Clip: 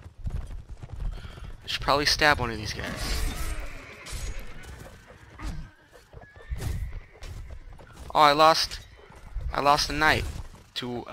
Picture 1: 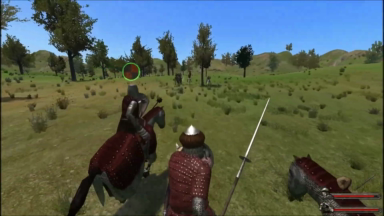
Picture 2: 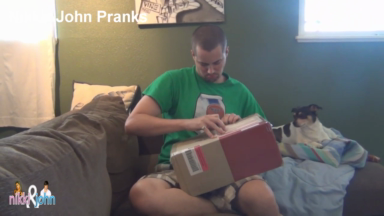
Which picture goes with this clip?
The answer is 1